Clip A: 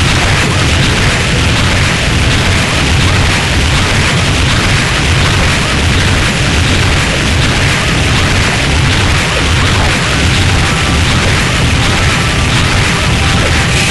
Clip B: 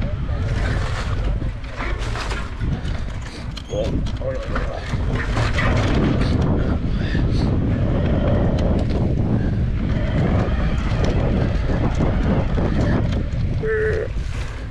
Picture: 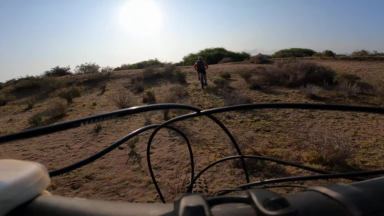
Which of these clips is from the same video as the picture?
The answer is B